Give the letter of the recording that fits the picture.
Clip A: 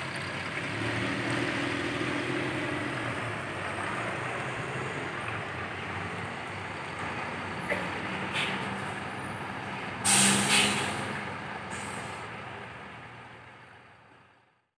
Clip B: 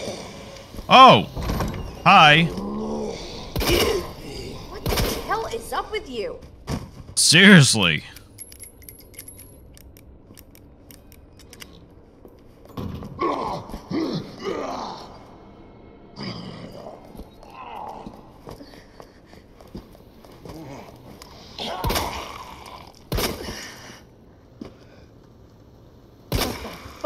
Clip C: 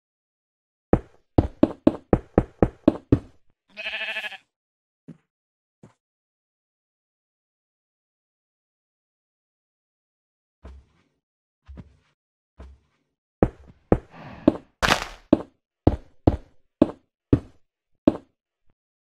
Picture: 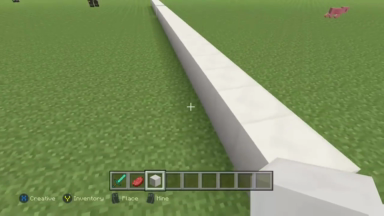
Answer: C